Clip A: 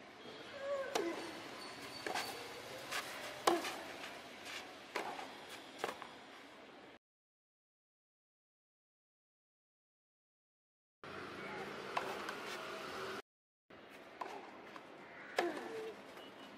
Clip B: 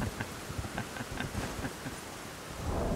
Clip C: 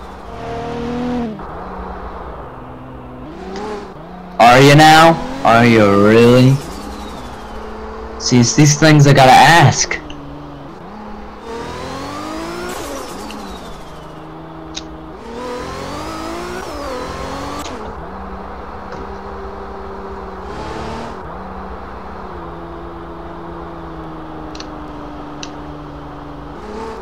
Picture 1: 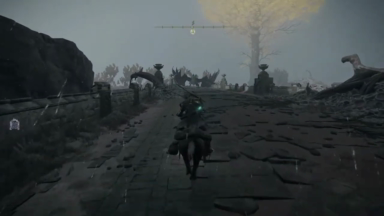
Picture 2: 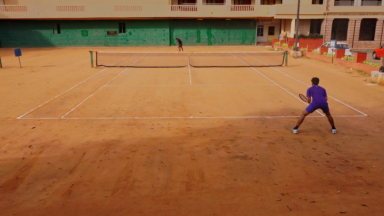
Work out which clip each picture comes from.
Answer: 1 B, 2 A